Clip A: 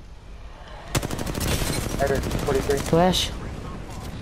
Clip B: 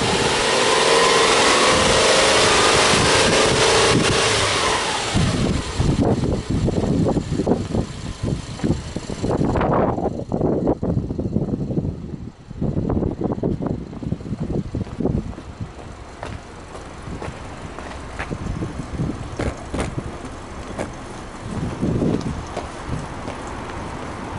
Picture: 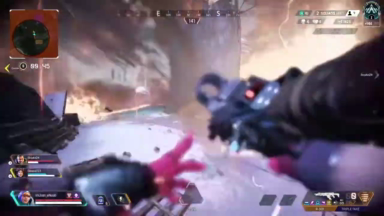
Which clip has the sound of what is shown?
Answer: A